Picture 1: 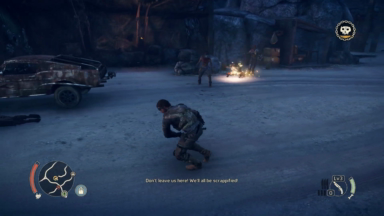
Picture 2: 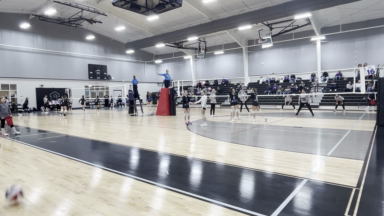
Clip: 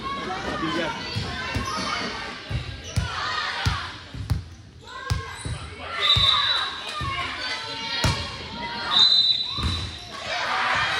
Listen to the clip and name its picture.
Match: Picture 2